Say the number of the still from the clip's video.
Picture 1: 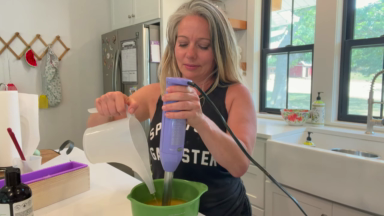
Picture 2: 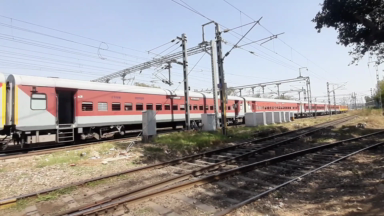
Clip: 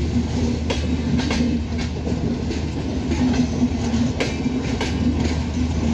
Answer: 2